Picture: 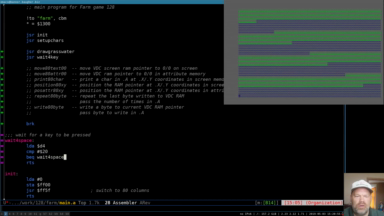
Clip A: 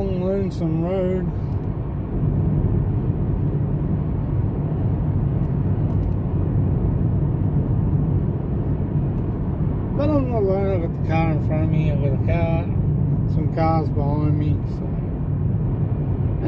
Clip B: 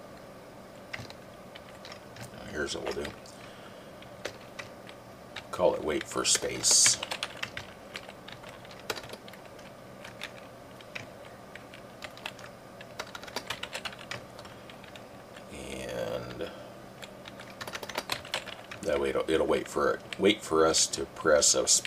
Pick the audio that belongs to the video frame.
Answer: B